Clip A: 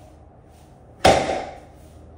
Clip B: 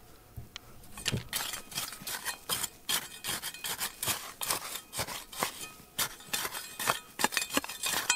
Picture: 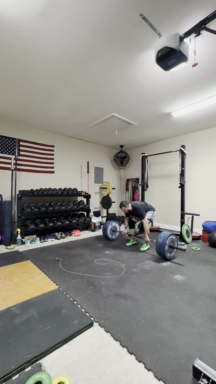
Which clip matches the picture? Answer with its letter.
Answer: A